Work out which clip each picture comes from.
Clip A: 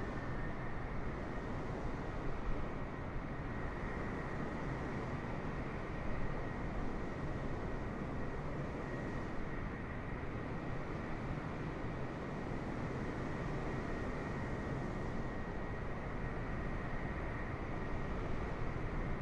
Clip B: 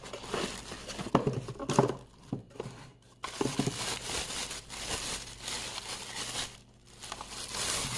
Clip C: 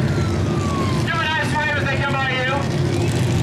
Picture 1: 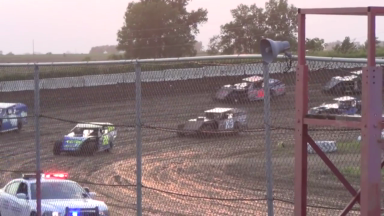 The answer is C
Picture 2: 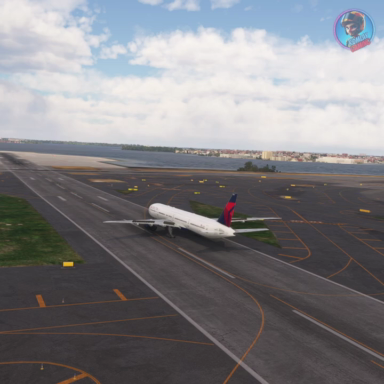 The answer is A